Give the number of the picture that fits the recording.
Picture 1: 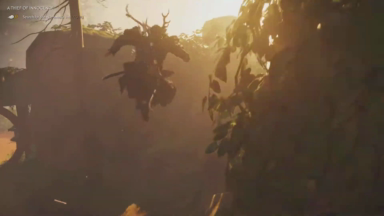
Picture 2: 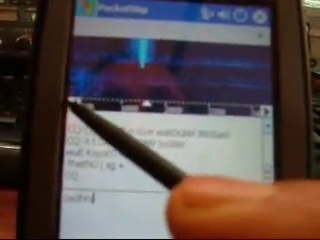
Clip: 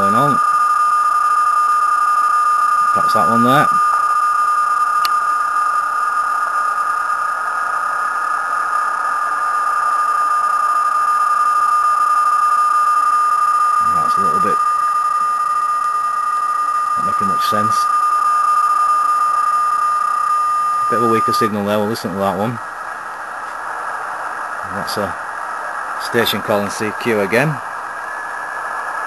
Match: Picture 2